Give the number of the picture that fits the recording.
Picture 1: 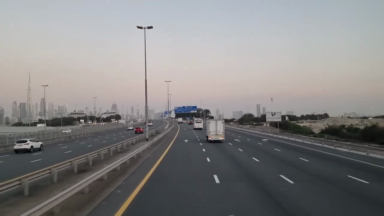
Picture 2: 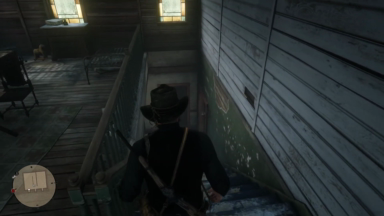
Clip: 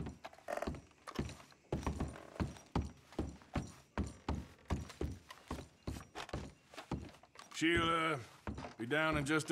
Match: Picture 2